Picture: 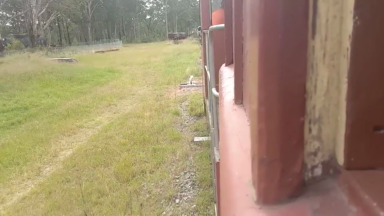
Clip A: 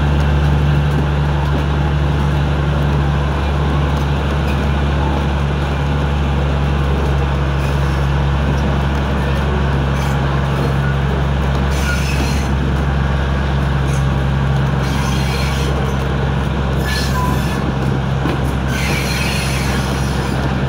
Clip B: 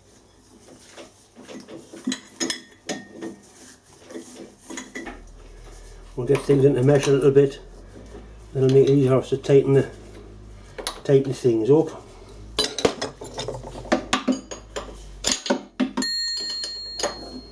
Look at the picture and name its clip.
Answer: A